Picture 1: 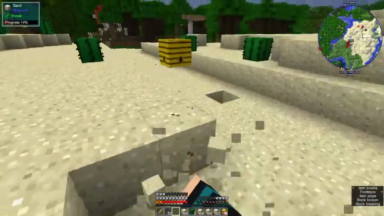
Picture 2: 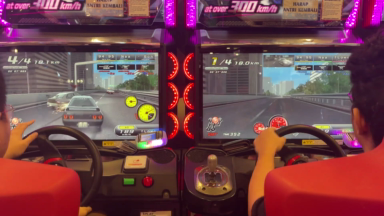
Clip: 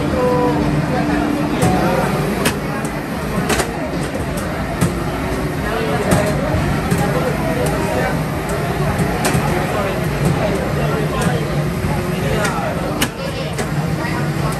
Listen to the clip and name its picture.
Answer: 2